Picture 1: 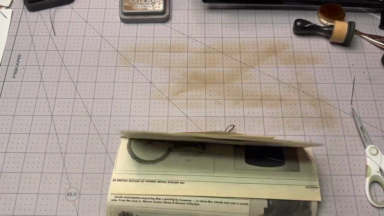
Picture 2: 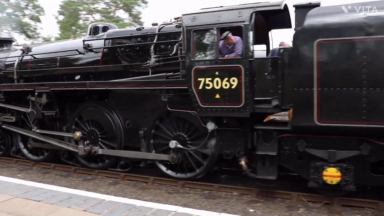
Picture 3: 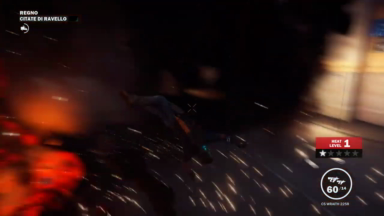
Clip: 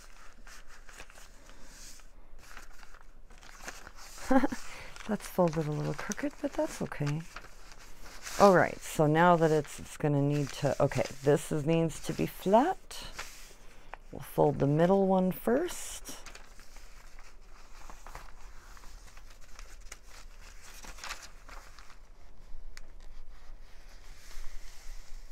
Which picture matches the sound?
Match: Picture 1